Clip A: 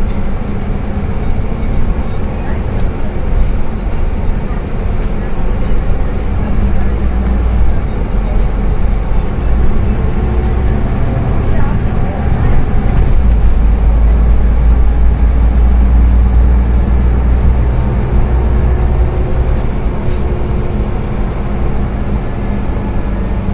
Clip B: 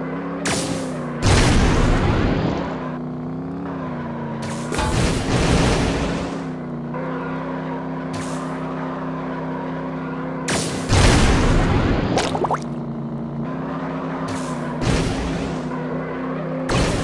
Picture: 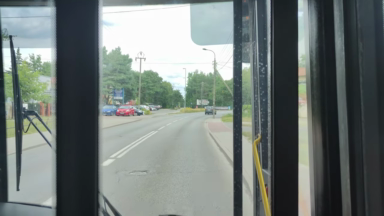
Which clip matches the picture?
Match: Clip A